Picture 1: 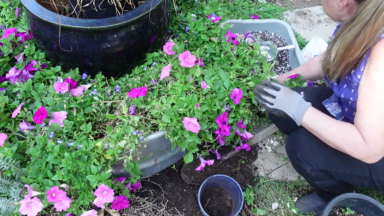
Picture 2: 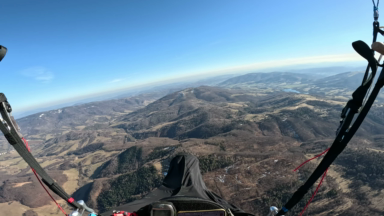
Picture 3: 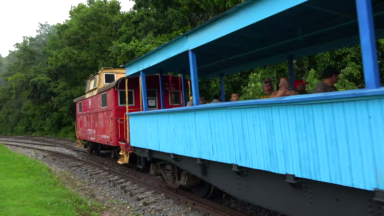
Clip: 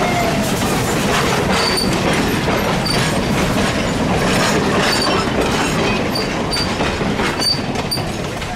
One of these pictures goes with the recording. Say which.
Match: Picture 3